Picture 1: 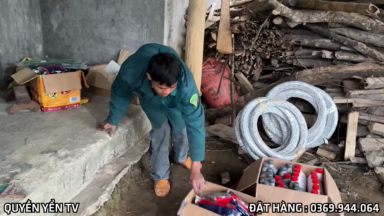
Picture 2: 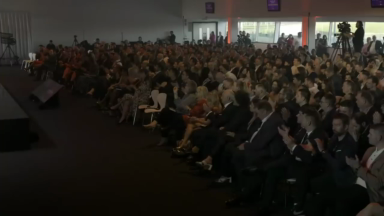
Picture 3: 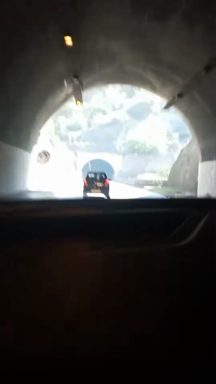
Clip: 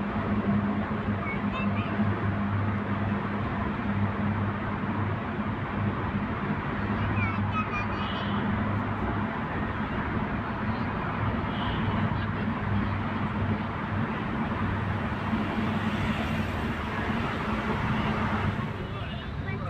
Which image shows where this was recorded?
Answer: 3